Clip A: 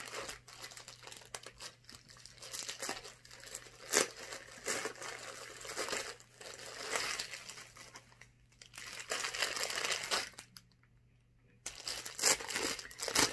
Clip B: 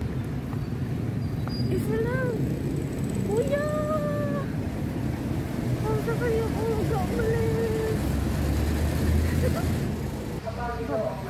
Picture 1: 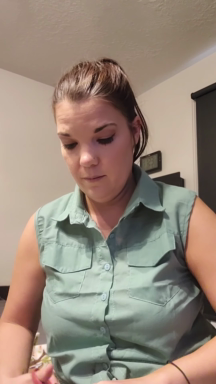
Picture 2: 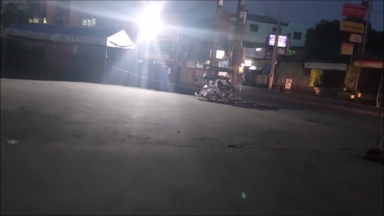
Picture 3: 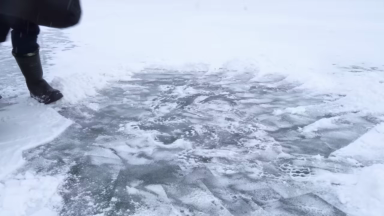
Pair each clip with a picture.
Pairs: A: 1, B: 2